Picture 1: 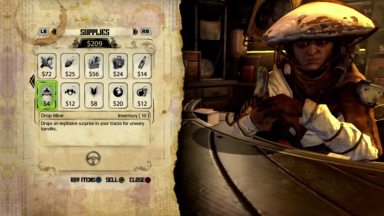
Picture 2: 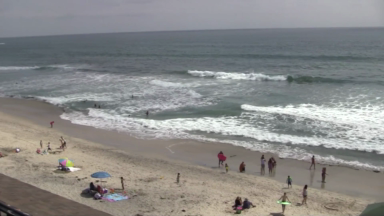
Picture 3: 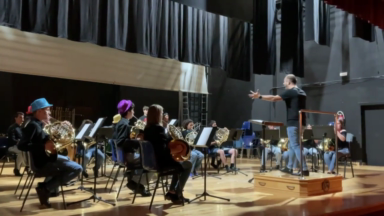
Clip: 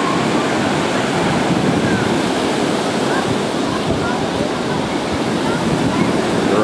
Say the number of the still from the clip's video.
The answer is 2